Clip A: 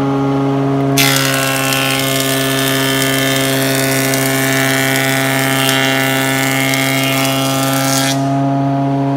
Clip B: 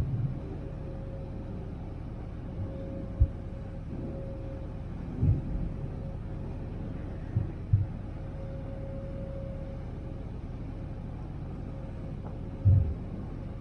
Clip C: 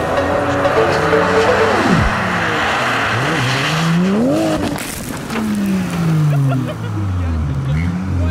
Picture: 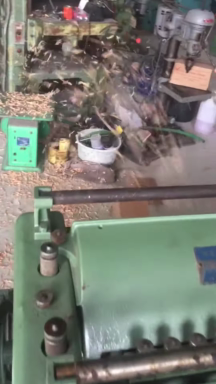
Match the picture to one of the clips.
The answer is A